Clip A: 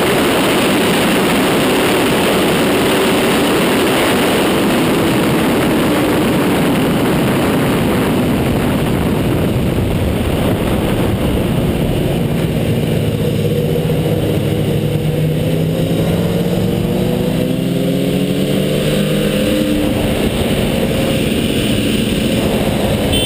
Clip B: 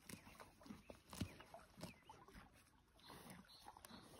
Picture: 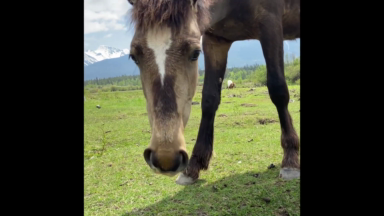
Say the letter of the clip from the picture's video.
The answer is B